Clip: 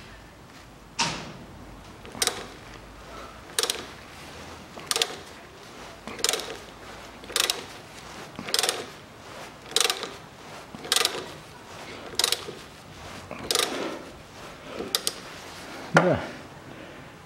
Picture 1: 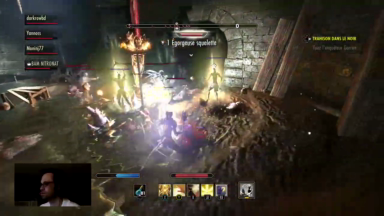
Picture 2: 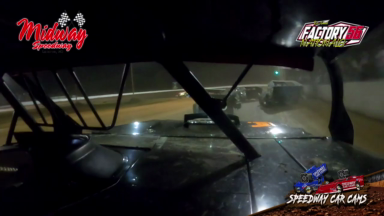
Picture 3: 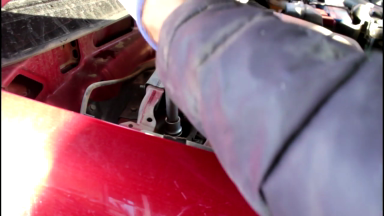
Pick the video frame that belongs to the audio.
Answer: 3